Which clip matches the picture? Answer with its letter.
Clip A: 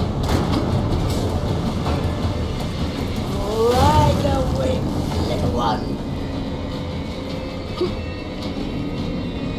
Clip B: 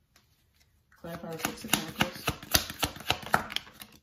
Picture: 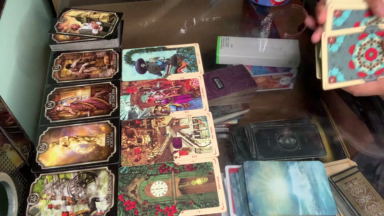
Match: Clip B